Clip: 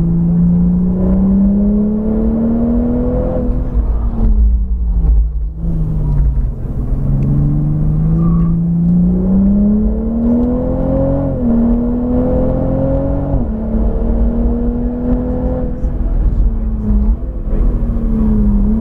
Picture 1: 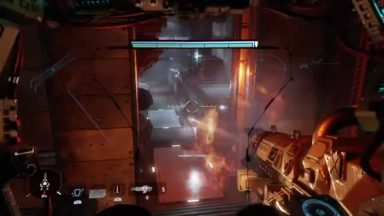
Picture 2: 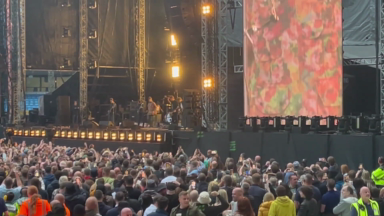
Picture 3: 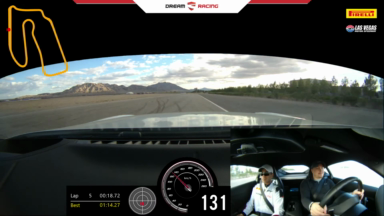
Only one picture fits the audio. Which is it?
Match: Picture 3